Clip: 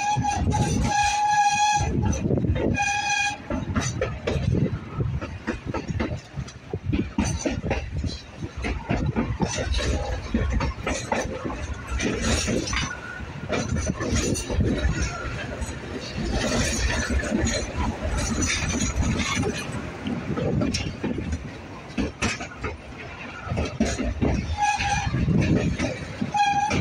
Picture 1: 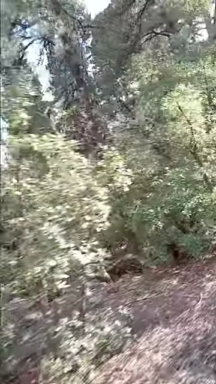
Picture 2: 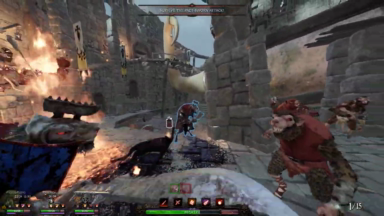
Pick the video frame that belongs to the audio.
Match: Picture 1